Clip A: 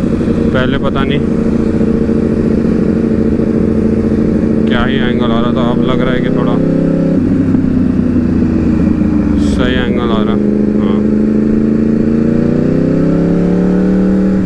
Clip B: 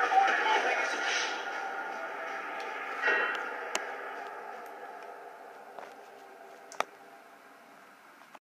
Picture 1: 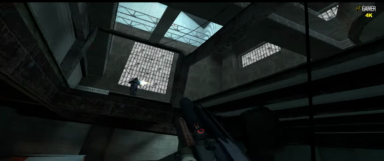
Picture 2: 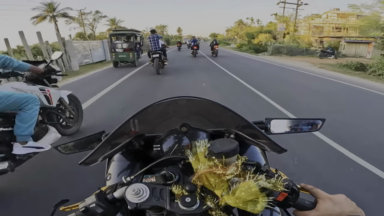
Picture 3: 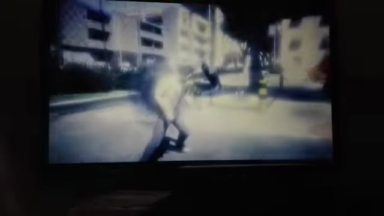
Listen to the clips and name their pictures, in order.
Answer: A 2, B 3